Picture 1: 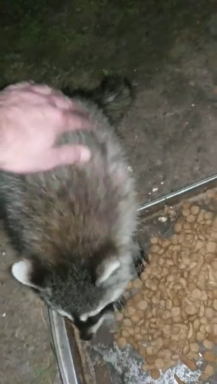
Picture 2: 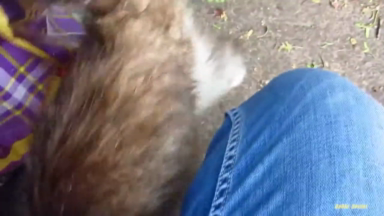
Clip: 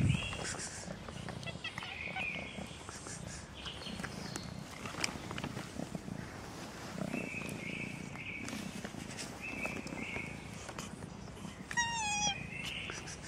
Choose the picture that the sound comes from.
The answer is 2